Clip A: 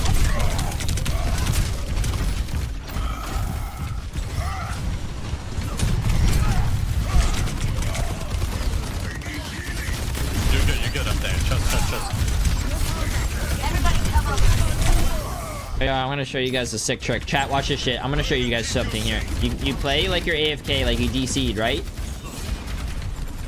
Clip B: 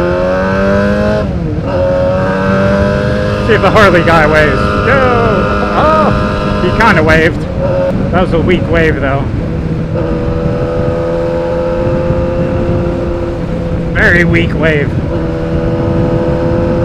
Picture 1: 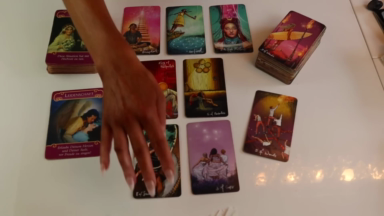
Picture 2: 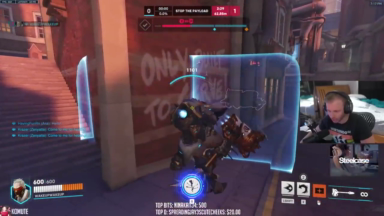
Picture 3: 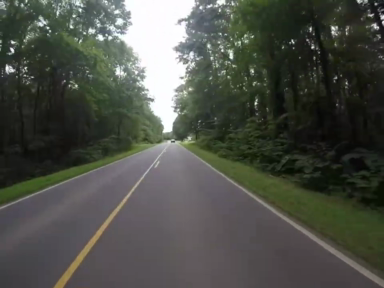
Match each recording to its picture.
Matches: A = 2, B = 3